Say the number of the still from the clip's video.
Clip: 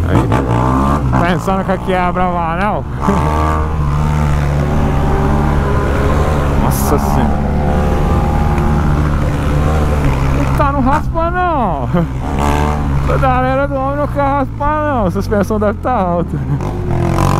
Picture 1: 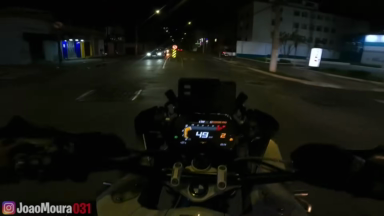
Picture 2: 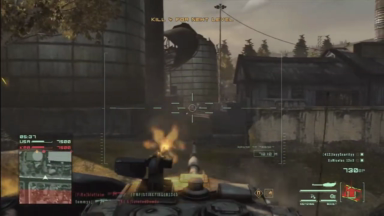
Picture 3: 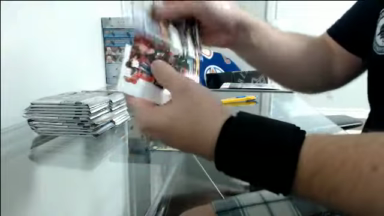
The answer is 1